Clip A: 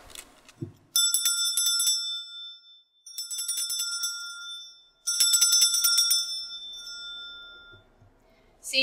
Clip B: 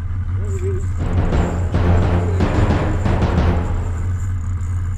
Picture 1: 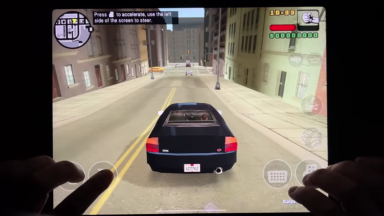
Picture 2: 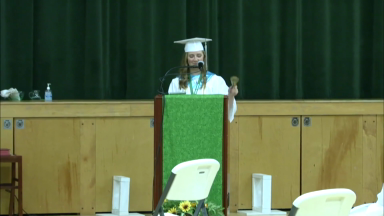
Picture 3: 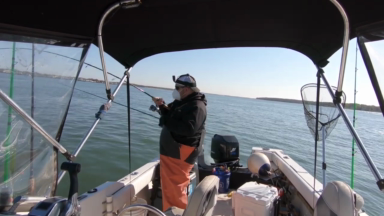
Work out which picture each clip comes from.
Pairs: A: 2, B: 3